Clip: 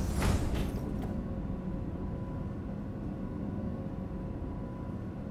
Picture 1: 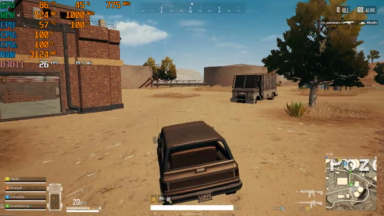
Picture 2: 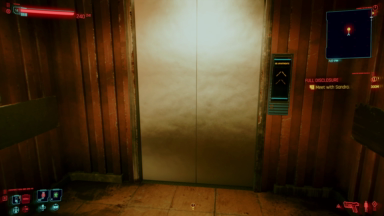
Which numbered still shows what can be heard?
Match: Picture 2